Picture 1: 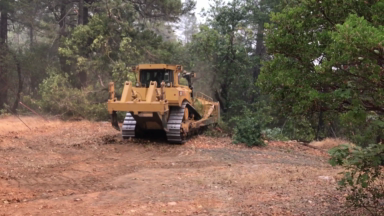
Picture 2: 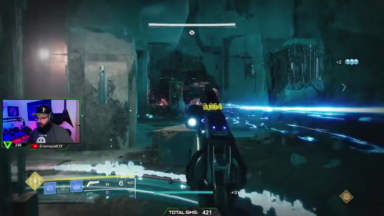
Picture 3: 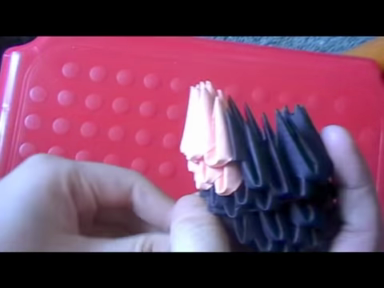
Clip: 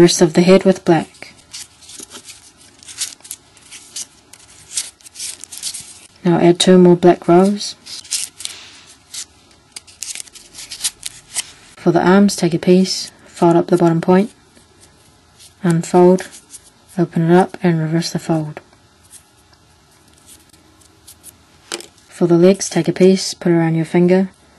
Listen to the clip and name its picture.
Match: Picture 3